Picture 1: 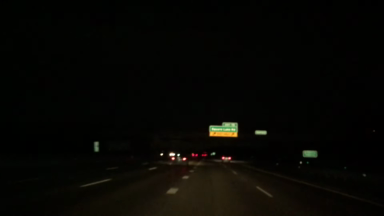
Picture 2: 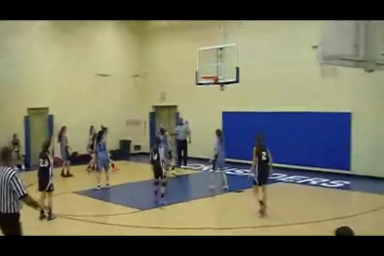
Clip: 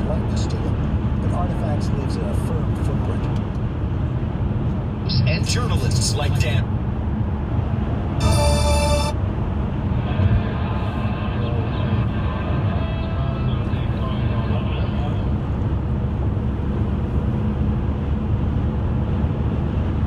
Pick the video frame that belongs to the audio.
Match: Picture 1